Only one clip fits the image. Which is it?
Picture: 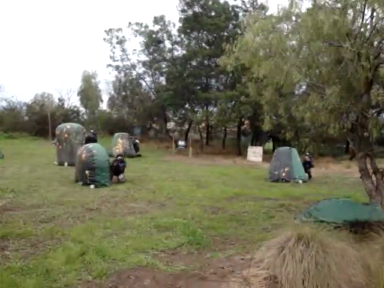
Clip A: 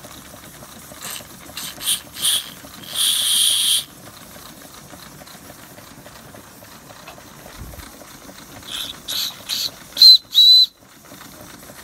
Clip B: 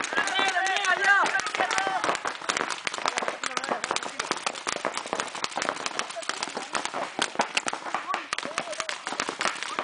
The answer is B